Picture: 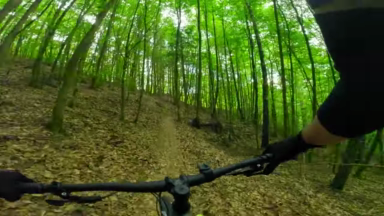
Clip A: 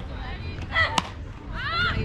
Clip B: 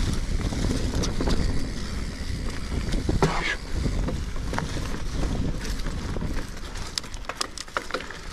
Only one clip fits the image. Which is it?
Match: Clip B